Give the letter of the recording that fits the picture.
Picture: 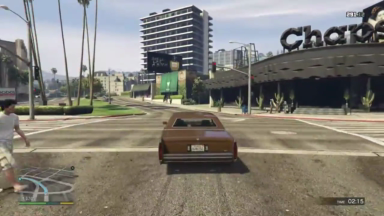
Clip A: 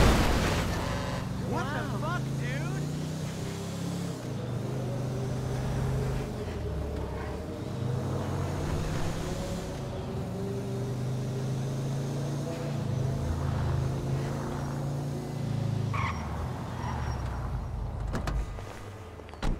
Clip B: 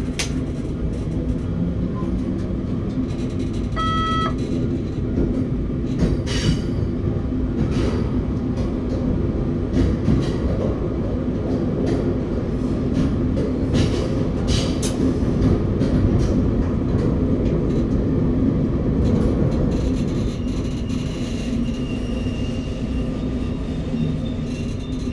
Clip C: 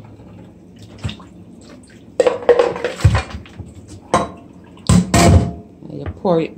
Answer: A